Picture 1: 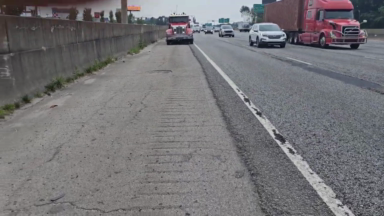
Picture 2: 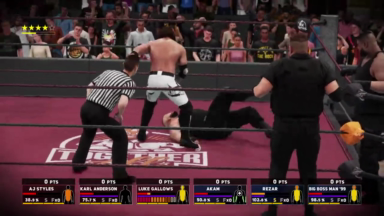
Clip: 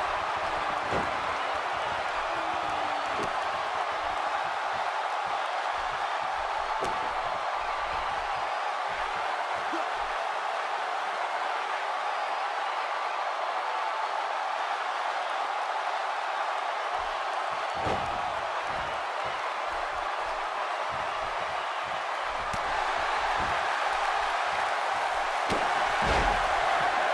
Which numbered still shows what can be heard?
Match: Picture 2